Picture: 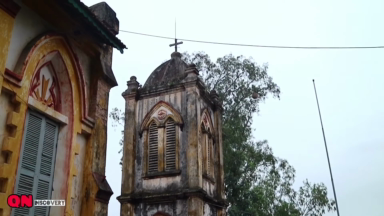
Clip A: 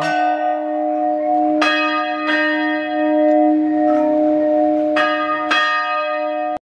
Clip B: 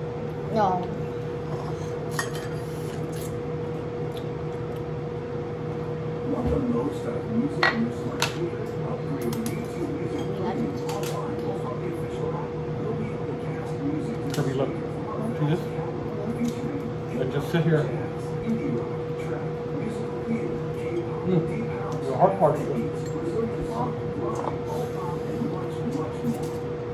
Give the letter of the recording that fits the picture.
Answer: A